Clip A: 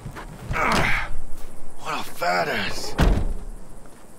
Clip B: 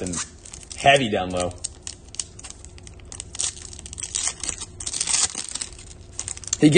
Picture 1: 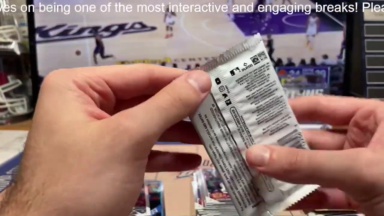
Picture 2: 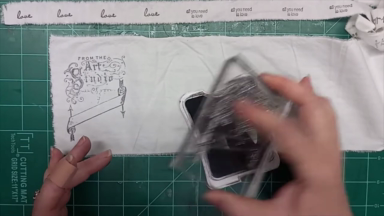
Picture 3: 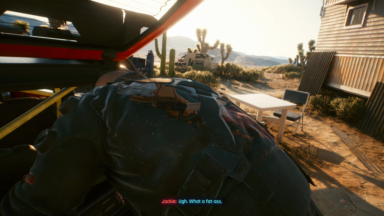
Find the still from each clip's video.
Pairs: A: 3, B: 1